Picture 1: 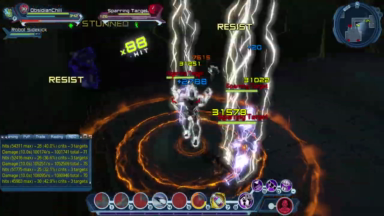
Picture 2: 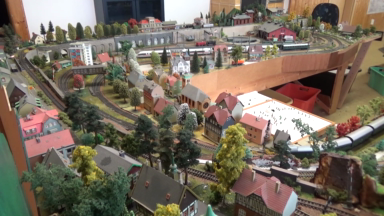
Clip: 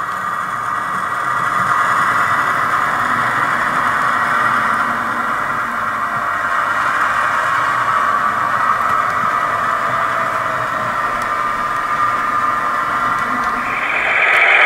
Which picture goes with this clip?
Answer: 2